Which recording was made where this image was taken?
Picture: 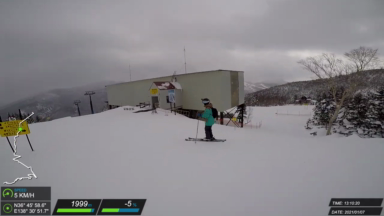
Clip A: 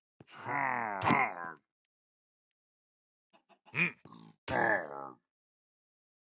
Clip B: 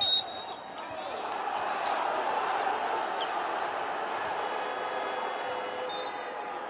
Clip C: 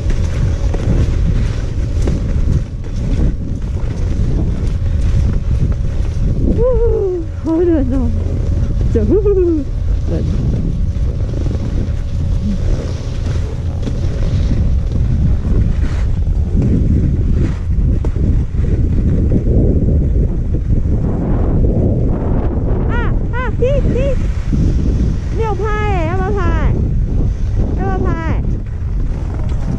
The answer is C